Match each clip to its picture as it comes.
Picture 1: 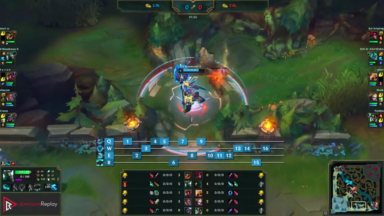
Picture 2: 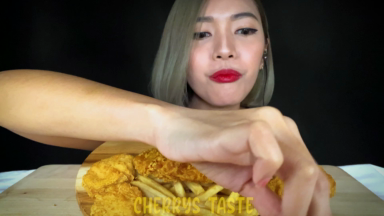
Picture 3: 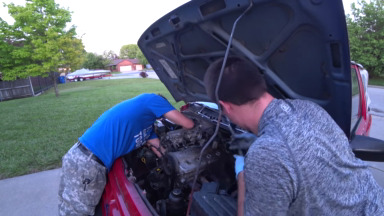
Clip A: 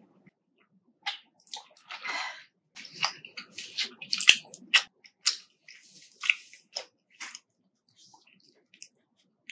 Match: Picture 2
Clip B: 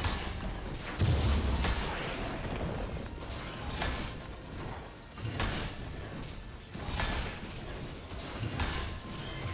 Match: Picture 1